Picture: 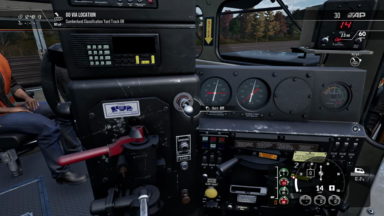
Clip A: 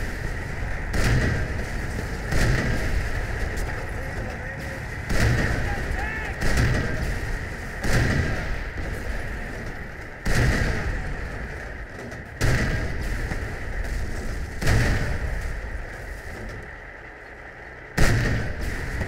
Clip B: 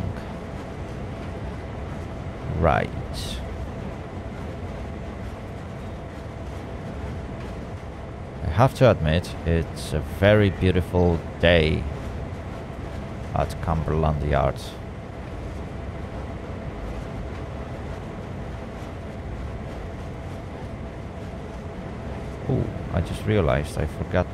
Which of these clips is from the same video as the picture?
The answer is B